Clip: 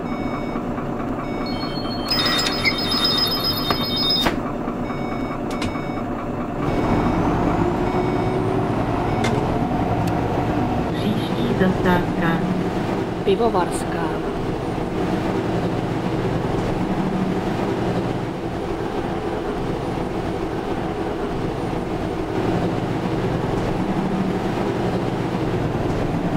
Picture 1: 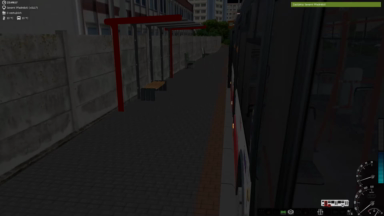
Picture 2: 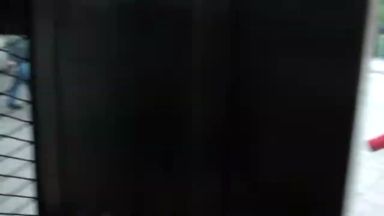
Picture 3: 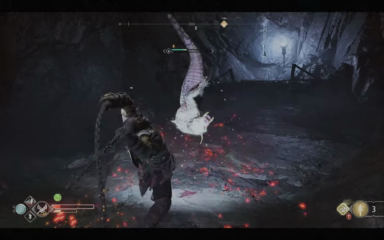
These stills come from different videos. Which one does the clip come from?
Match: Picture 1